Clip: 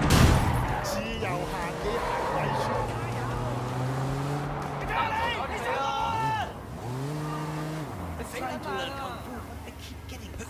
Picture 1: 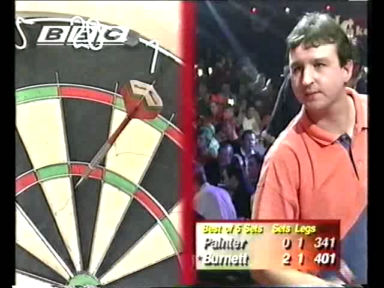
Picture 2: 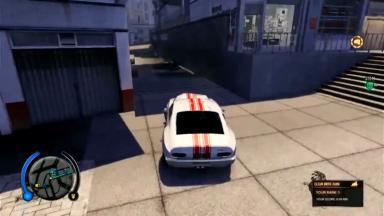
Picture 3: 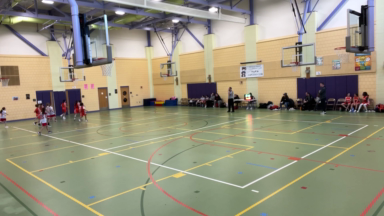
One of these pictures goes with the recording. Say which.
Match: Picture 2